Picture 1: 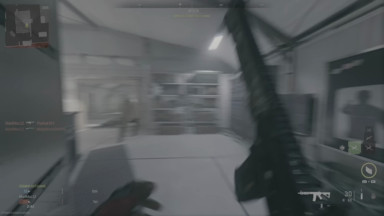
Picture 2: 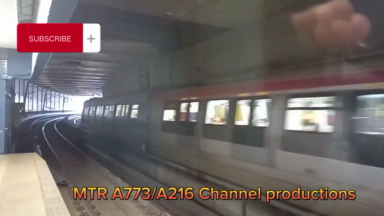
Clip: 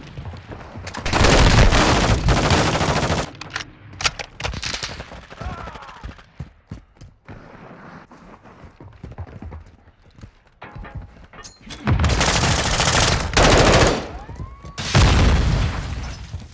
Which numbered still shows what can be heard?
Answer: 1